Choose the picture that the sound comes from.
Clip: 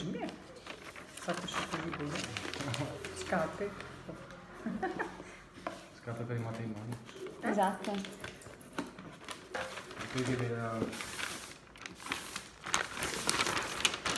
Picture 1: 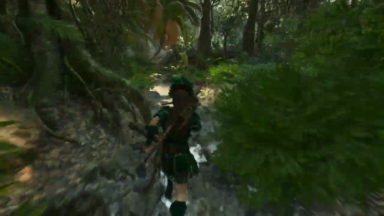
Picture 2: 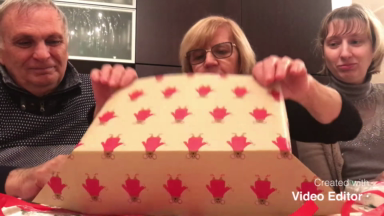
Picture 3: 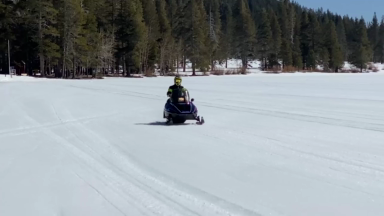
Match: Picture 2